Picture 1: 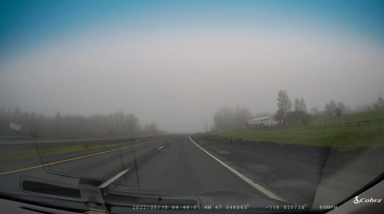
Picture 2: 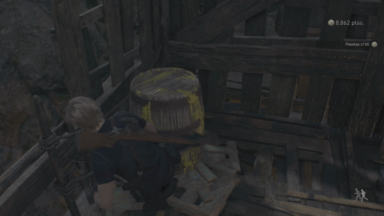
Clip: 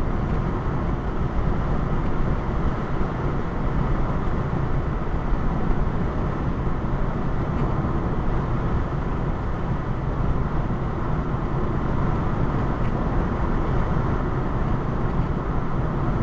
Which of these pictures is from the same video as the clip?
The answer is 1